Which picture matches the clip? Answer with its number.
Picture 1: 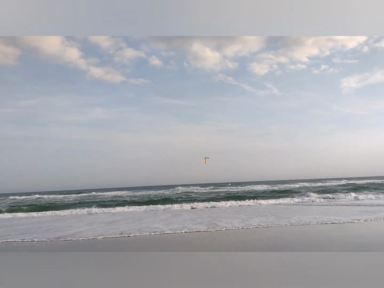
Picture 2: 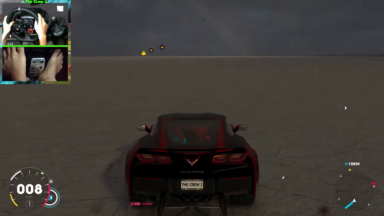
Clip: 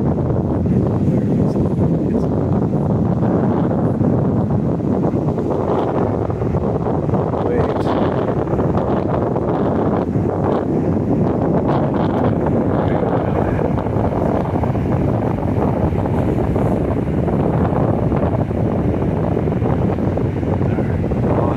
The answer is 1